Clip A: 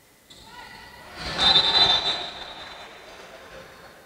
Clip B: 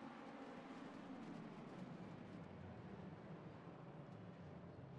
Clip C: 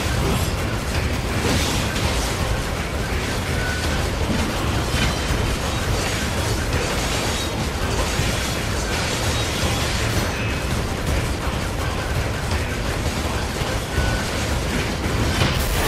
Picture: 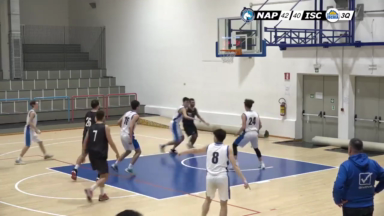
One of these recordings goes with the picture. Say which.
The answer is A